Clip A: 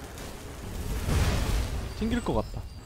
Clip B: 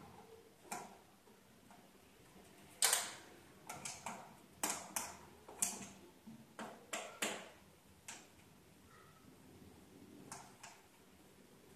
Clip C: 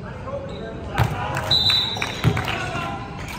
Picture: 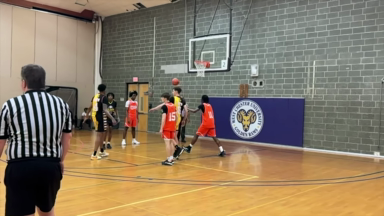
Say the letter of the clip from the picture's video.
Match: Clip C